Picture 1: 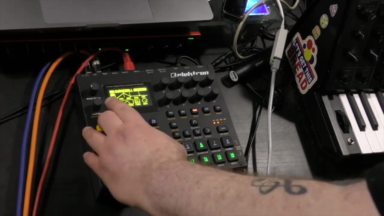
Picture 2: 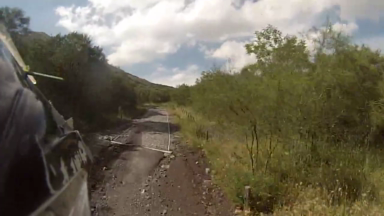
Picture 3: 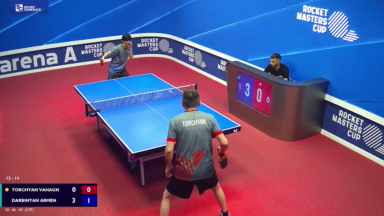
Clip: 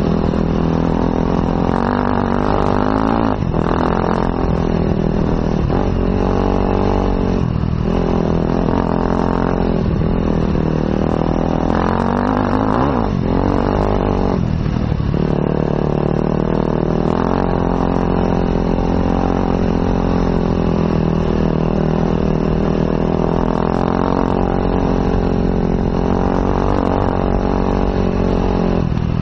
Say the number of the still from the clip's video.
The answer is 2